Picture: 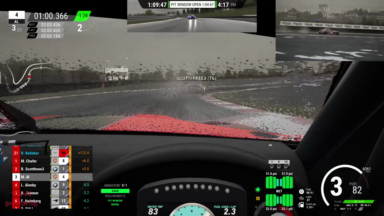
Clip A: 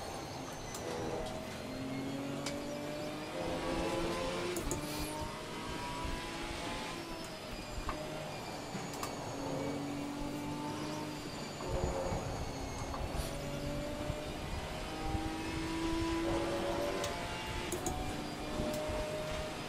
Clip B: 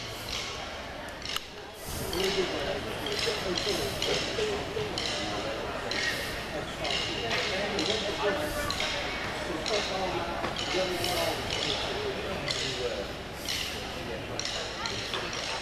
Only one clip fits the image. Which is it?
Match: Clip A